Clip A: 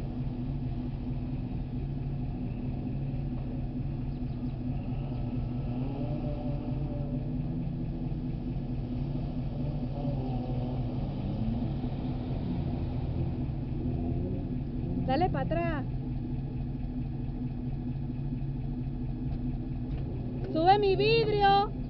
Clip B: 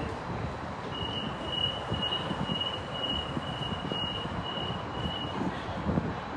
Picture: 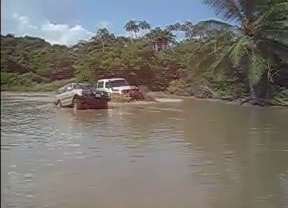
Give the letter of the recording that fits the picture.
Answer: A